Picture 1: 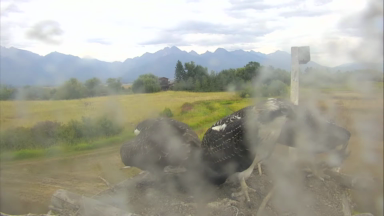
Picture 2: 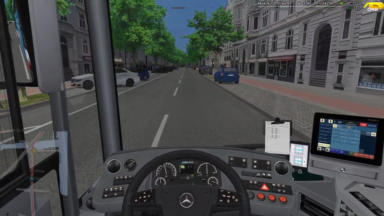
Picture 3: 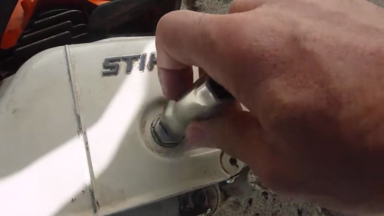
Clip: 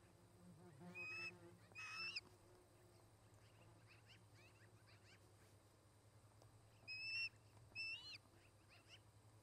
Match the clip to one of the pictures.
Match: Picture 1